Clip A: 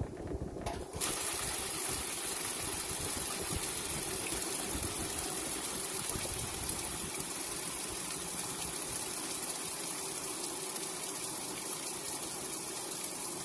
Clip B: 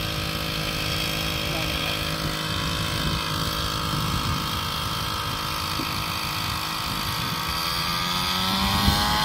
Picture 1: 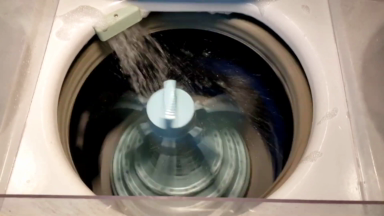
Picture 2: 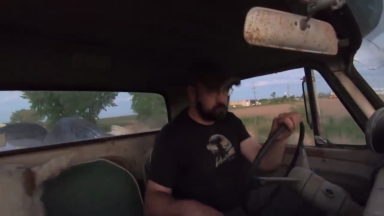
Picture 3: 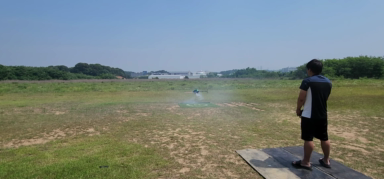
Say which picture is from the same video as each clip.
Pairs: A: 1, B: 3